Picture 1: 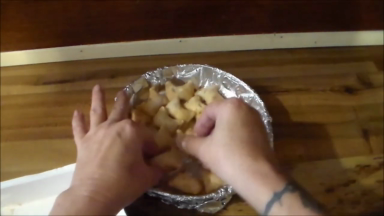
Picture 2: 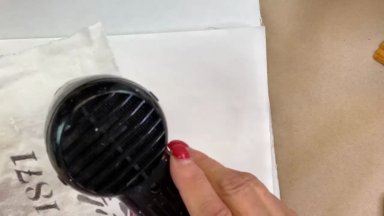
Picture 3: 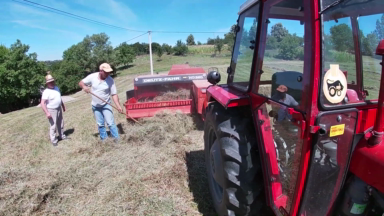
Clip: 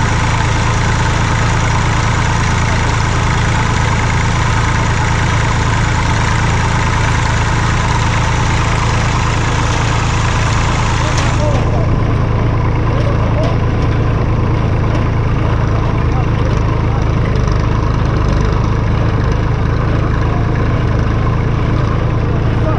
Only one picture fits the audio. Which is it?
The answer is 3